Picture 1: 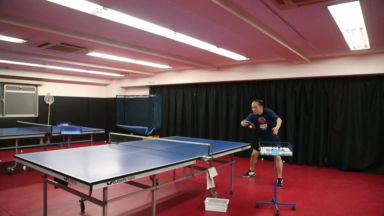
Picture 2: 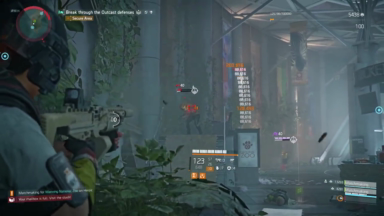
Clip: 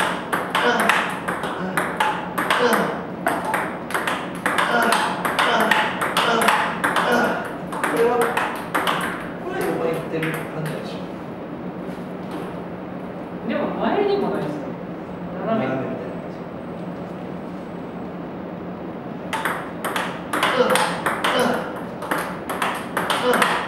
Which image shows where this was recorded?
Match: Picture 1